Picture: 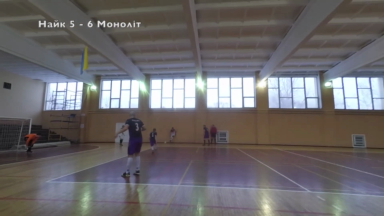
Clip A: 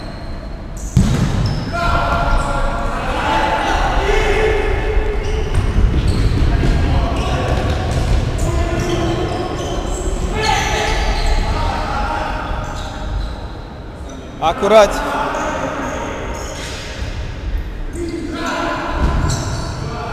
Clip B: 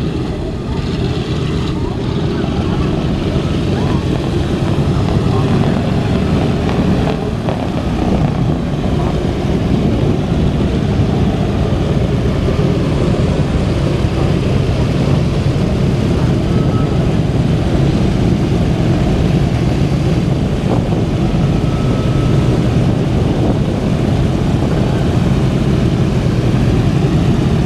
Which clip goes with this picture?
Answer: A